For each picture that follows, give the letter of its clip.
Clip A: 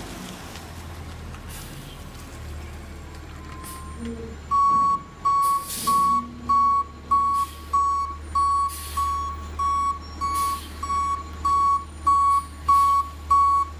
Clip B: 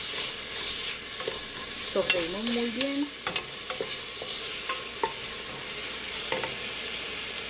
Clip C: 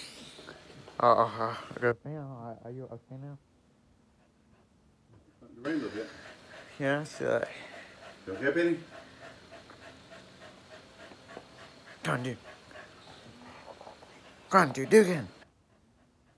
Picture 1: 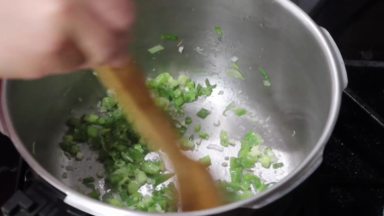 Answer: B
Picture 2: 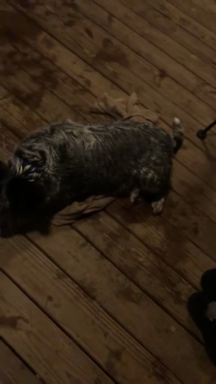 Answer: C